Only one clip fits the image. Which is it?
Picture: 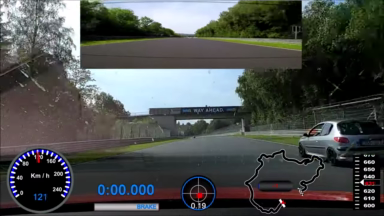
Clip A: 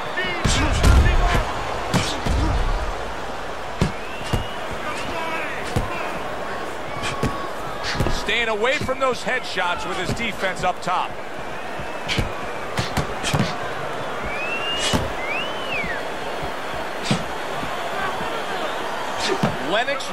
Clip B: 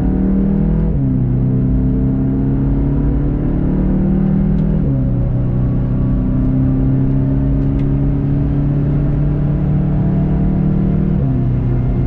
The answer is B